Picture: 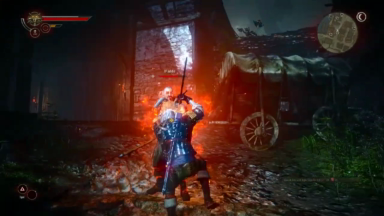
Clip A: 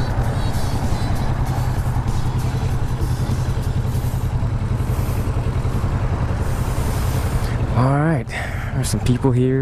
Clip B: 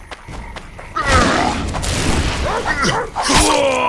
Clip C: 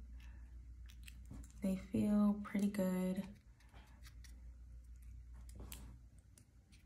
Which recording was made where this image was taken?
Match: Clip B